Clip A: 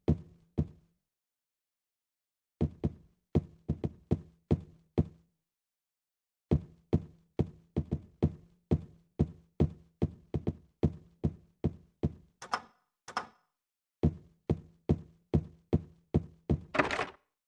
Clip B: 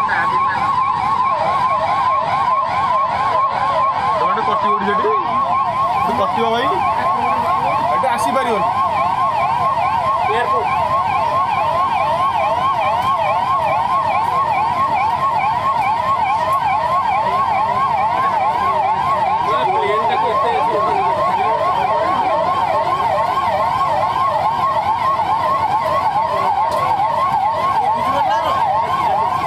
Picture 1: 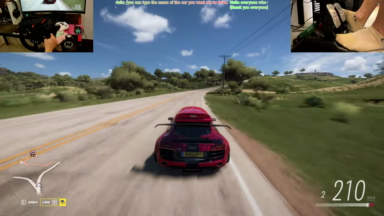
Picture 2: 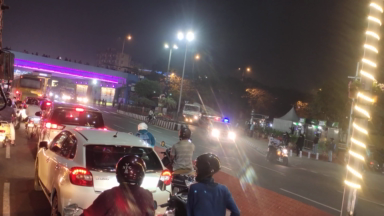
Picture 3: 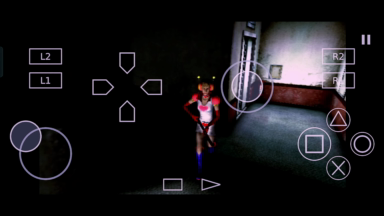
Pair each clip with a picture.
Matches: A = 3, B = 2